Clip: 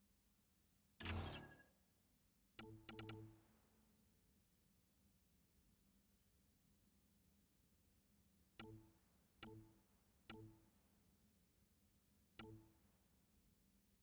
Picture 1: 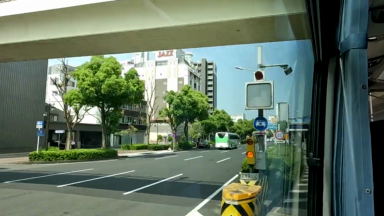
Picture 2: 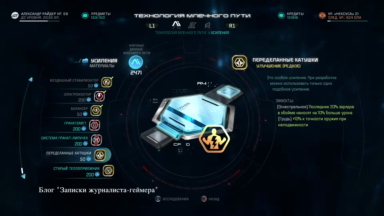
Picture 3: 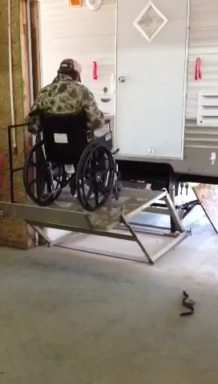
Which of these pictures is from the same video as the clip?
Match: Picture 2